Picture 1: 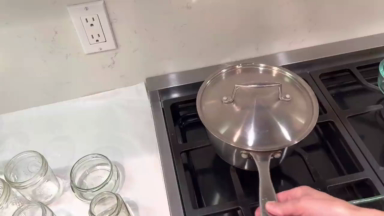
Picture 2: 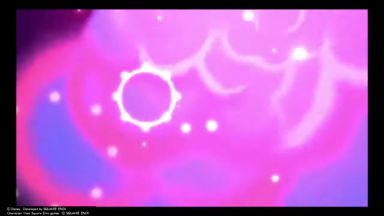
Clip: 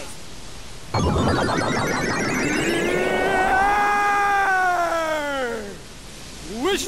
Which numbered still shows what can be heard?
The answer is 2